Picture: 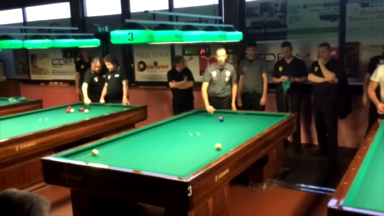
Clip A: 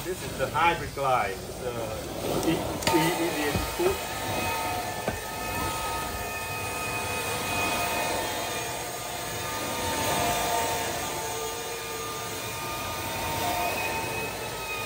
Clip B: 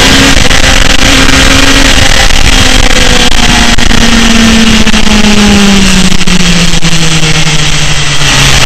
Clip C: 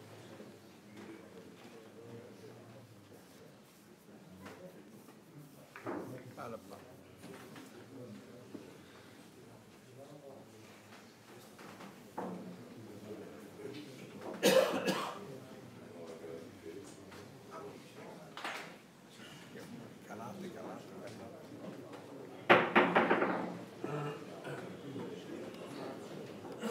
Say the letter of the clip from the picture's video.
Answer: C